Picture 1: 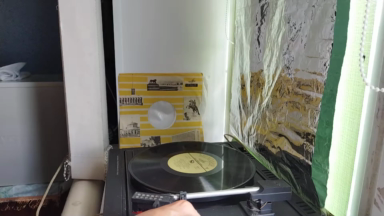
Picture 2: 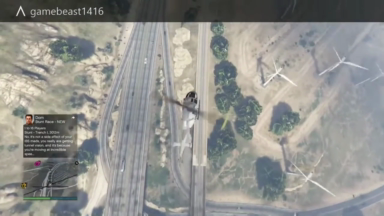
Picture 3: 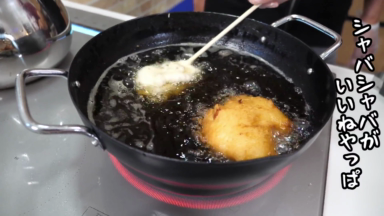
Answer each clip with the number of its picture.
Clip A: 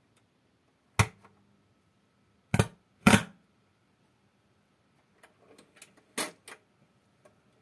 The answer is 1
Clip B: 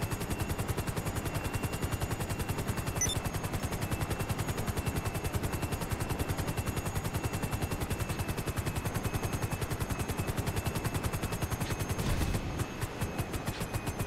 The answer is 2